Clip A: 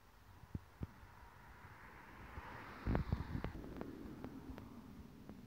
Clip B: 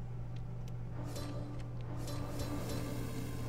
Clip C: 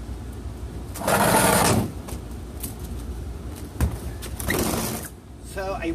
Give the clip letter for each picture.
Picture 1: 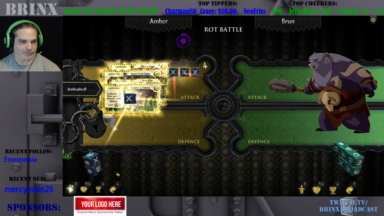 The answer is B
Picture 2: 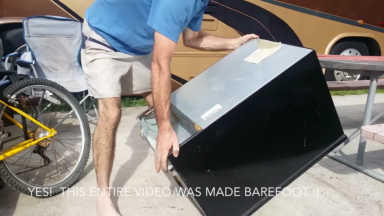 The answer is C